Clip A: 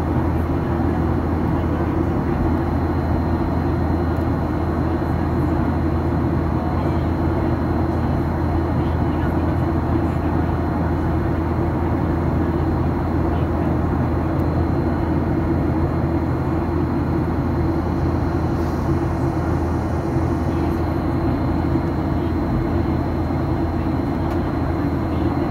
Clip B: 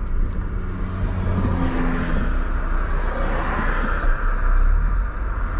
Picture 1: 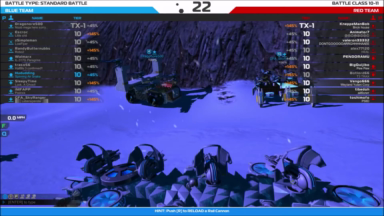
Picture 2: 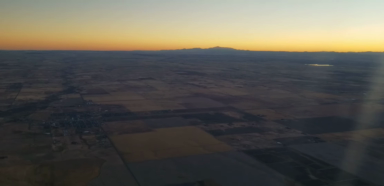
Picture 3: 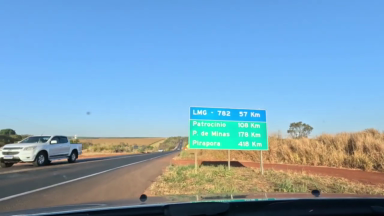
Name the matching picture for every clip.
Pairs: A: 2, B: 3